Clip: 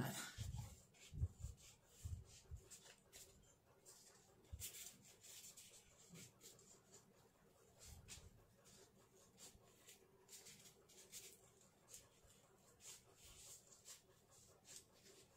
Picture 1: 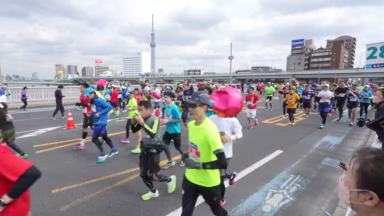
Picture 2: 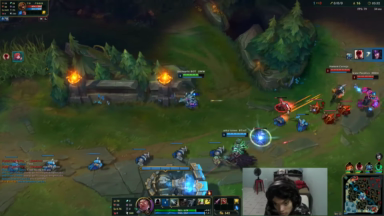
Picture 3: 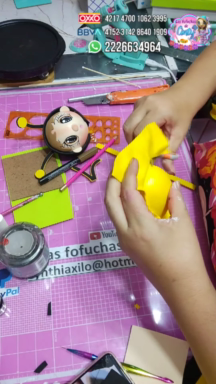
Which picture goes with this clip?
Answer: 3